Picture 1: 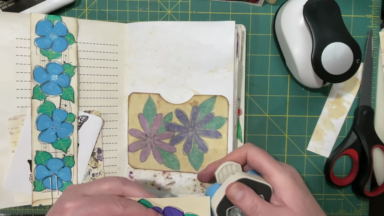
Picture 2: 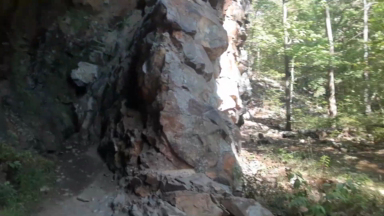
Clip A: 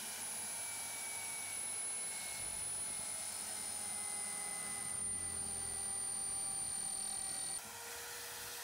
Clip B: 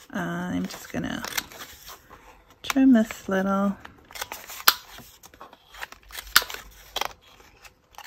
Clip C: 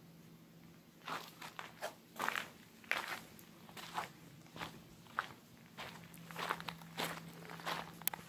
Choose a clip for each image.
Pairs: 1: B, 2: C